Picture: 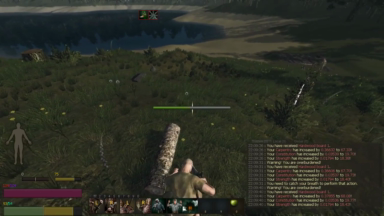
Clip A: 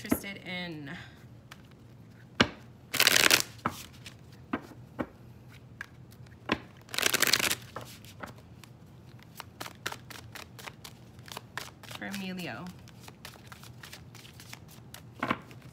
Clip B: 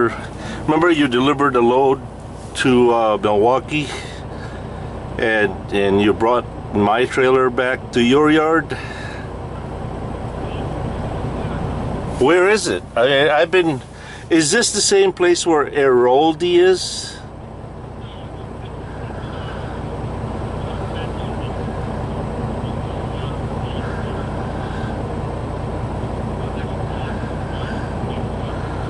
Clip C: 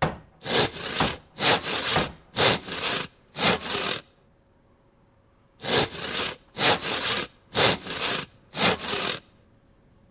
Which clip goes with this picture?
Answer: C